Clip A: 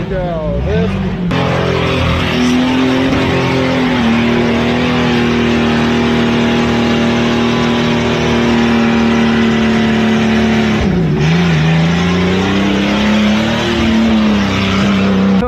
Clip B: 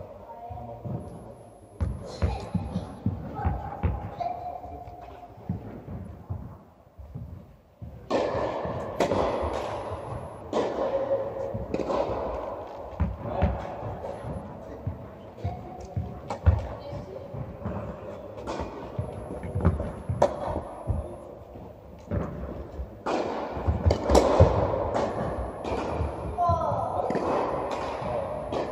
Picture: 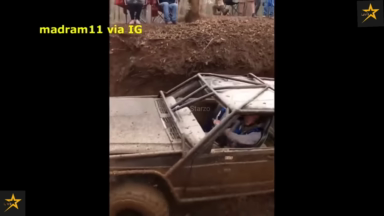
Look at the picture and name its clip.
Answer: A